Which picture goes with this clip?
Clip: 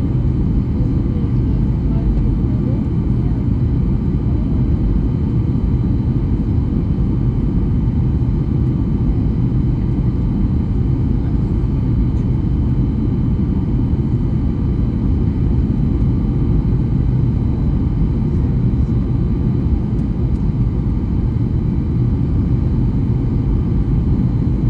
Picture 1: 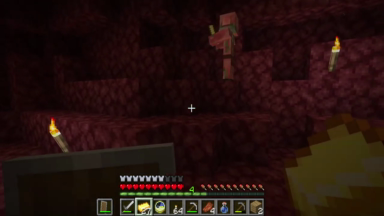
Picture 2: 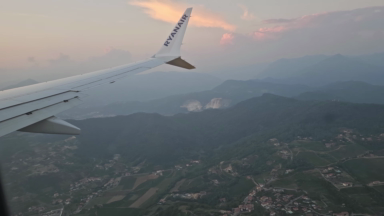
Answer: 2